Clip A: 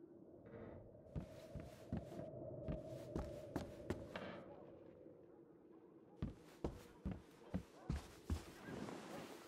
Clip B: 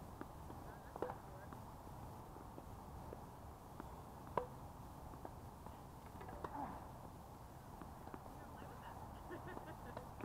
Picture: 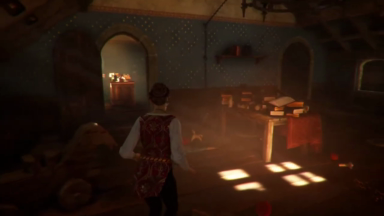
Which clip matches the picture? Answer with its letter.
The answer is A